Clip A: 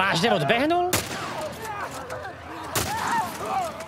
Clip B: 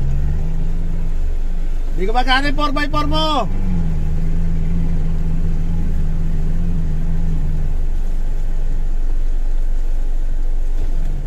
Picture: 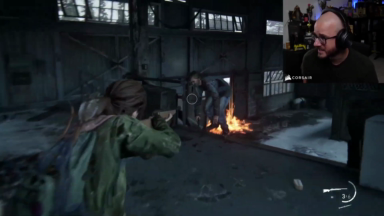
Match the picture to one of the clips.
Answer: A